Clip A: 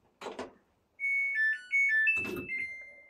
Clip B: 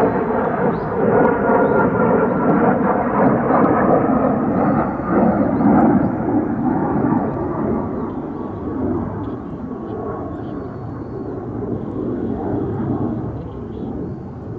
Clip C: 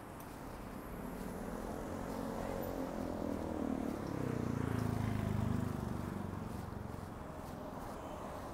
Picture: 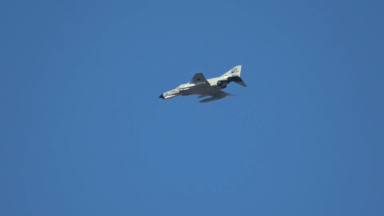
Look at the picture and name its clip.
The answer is B